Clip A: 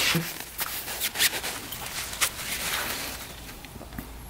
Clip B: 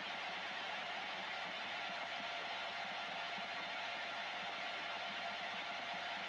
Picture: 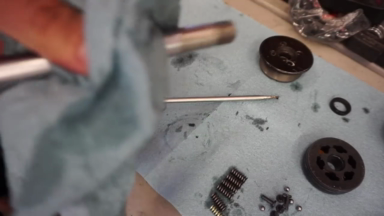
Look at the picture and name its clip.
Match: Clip A